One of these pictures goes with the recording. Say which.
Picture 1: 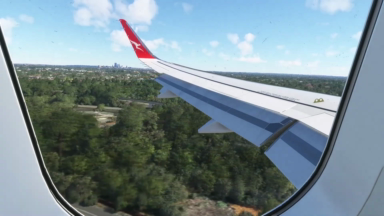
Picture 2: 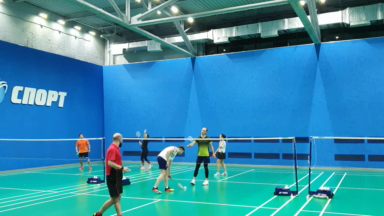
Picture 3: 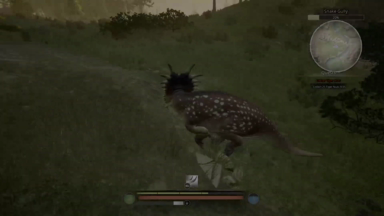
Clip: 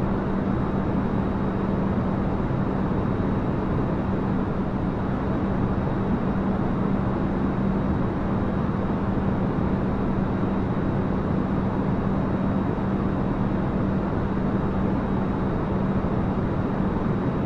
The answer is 1